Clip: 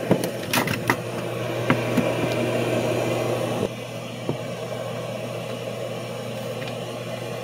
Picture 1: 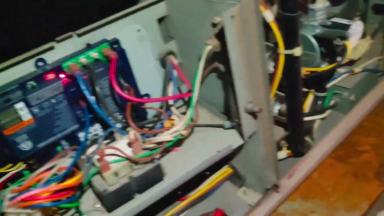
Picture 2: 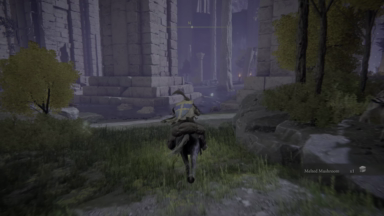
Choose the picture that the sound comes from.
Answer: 1